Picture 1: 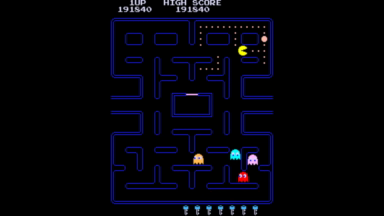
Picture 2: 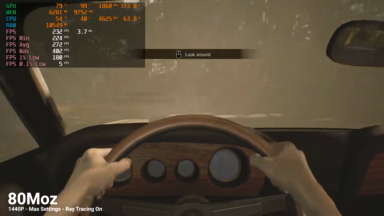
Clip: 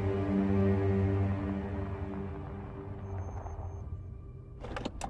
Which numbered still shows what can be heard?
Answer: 2